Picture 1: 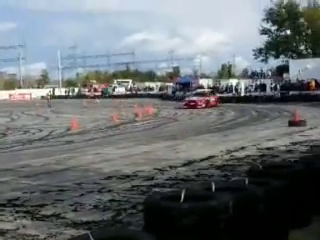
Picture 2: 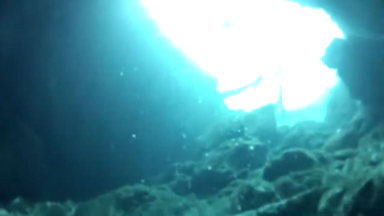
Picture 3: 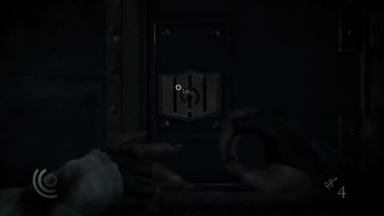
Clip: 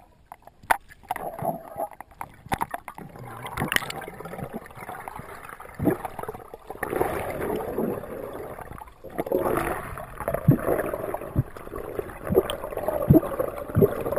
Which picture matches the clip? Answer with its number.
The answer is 2